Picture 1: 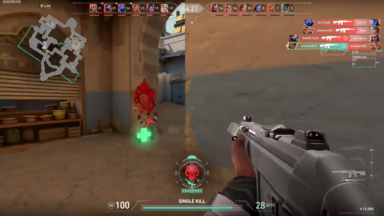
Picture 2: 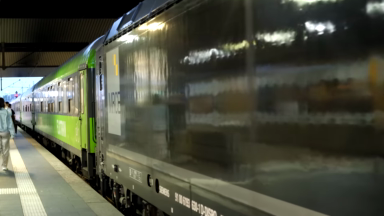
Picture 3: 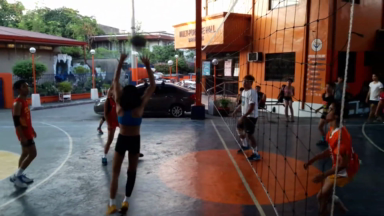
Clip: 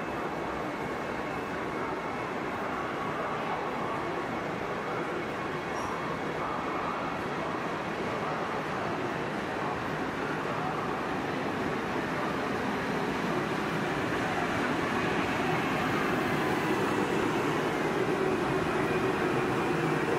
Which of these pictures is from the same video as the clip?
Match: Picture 2